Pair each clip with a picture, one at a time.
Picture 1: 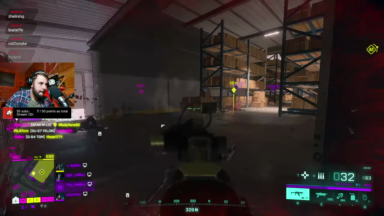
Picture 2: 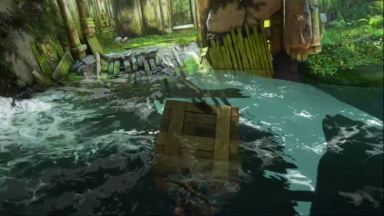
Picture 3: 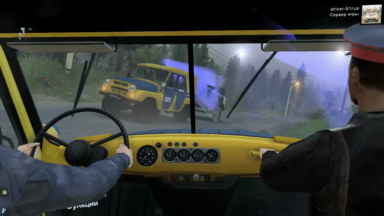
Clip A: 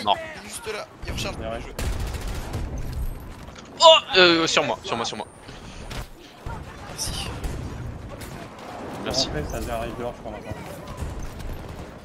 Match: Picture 1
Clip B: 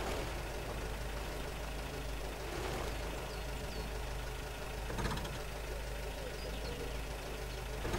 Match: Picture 3